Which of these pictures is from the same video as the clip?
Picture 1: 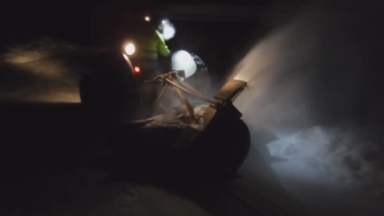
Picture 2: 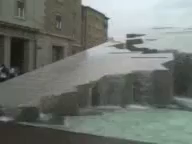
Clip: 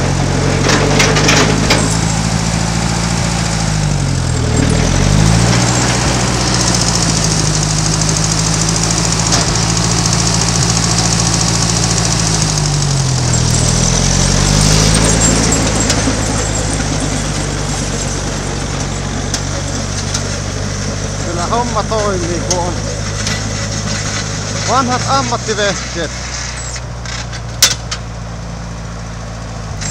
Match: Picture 1